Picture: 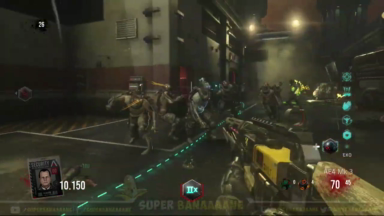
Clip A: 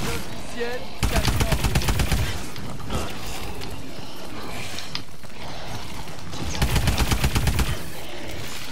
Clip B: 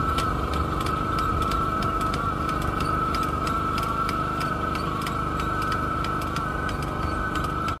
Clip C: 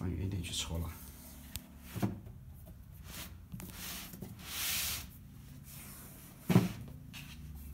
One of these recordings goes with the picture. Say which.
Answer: A